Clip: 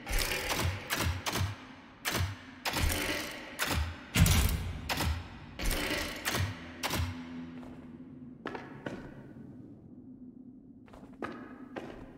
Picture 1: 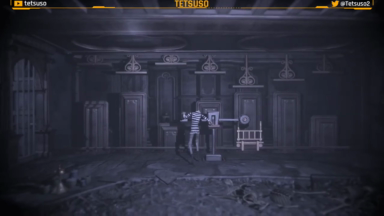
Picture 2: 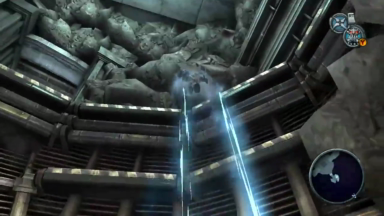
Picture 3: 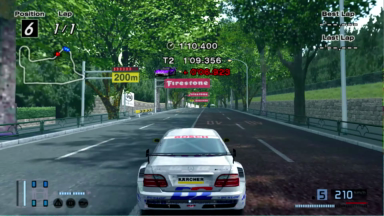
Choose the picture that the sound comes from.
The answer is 1